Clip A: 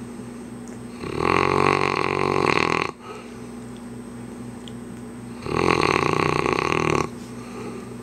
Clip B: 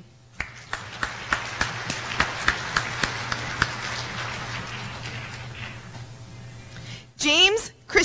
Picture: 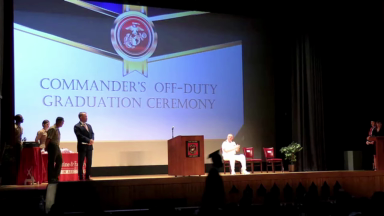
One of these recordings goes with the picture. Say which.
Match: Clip B